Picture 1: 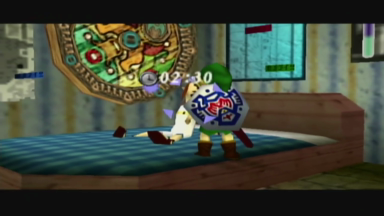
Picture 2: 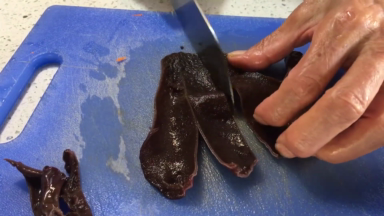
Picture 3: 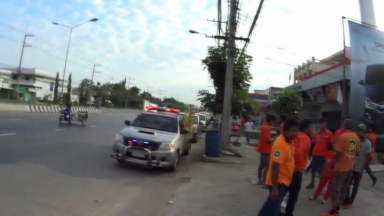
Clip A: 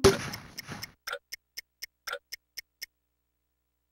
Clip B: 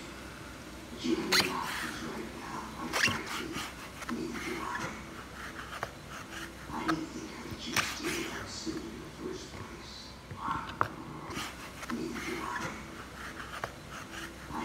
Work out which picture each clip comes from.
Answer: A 1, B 2